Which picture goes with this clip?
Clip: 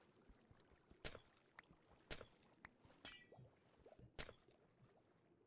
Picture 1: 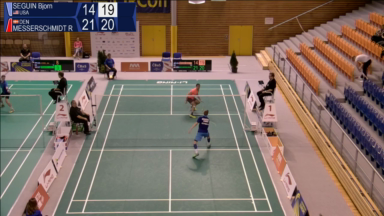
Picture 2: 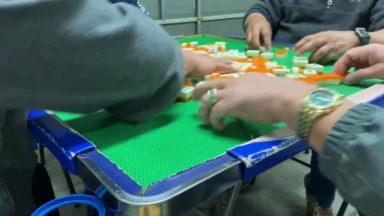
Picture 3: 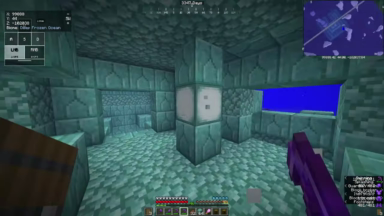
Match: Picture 3